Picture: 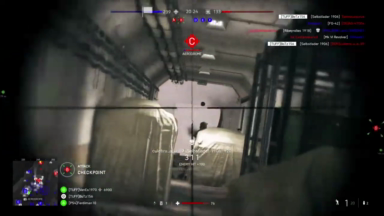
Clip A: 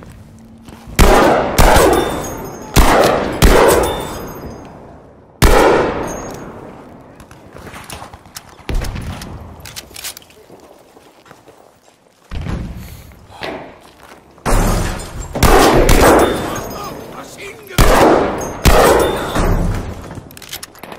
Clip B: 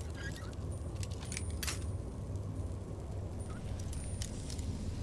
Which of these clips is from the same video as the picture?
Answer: A